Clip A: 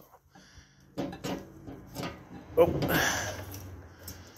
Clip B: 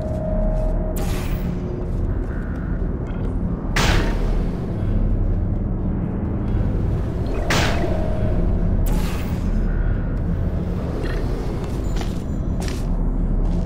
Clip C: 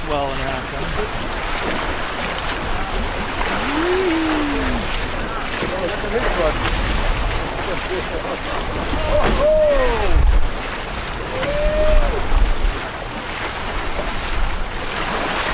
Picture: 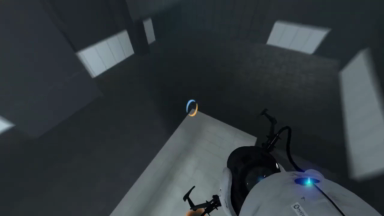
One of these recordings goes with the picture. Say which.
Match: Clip B